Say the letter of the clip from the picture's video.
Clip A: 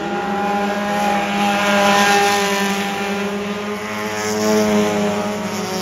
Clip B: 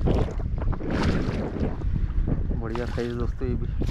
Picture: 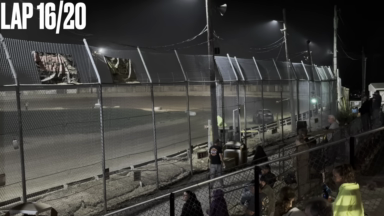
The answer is A